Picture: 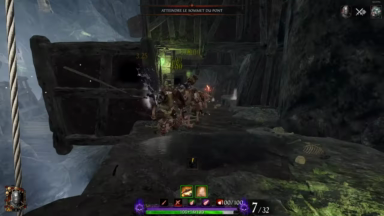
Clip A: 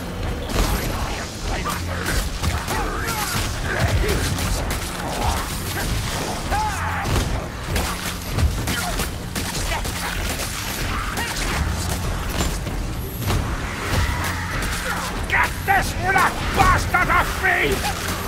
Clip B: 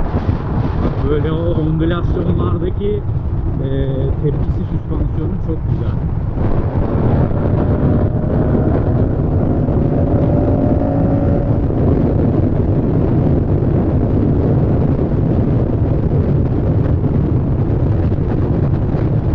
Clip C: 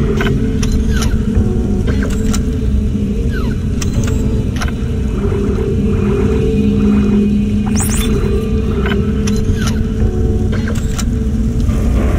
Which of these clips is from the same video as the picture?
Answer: A